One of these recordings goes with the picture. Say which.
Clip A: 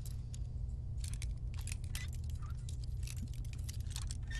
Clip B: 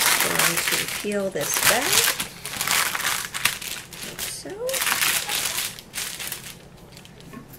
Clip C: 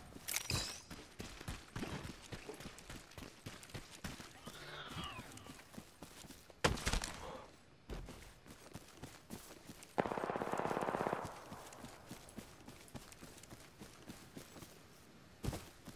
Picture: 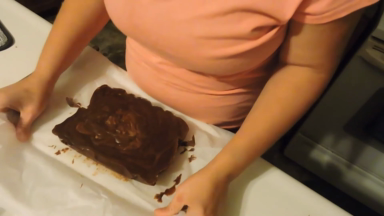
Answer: B